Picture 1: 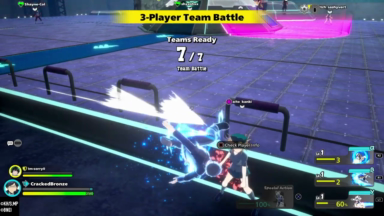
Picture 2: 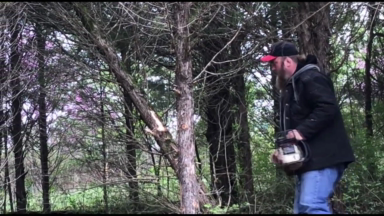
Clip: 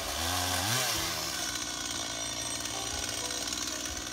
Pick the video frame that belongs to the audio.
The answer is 2